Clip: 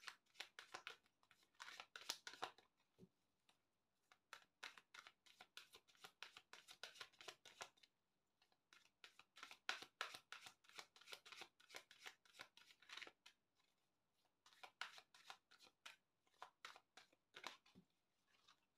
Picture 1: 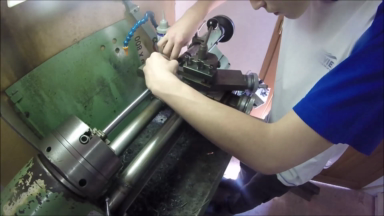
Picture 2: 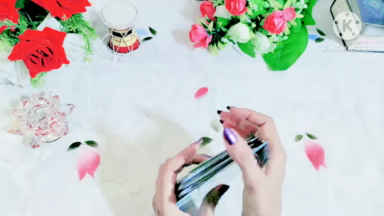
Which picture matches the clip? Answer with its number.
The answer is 2